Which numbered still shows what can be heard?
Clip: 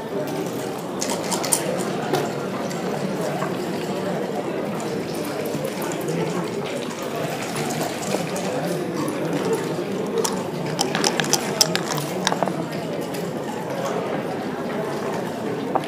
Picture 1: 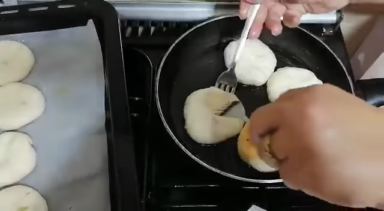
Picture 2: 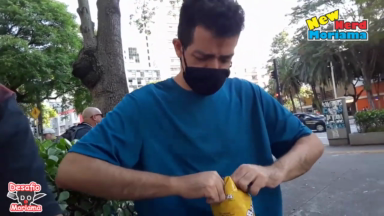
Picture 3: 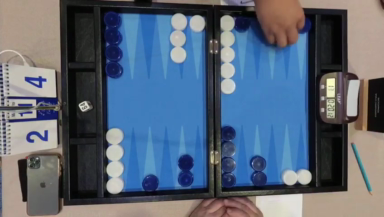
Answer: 3